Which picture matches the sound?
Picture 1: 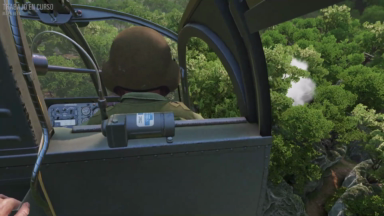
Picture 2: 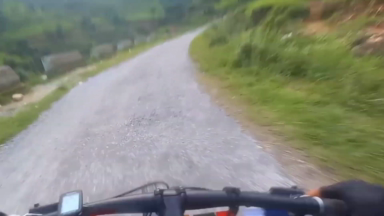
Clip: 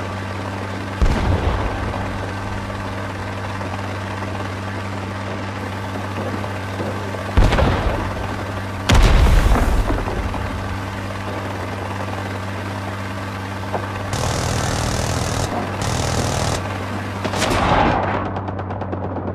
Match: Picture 1